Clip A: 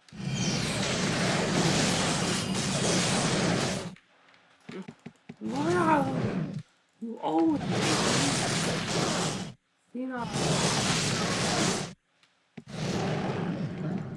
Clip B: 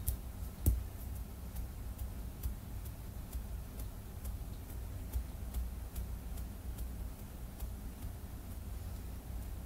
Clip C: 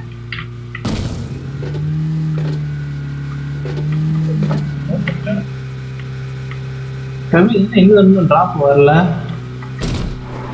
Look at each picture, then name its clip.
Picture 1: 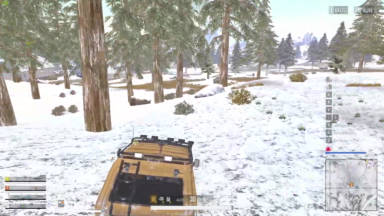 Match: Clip C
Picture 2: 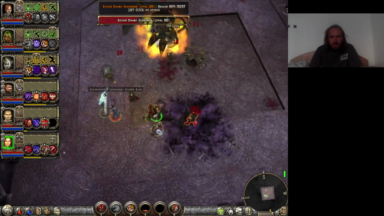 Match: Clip A